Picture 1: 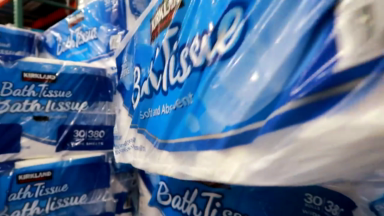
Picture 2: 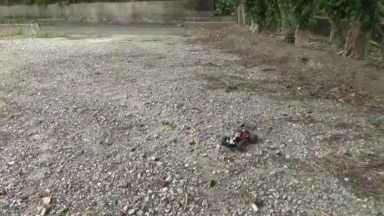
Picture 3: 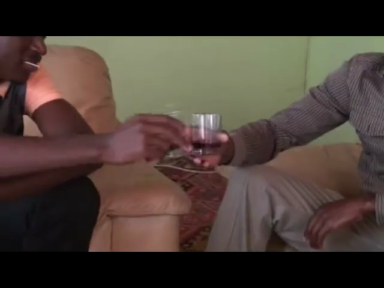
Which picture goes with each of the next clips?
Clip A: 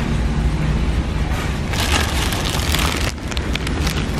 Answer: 1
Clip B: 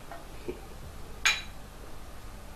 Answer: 3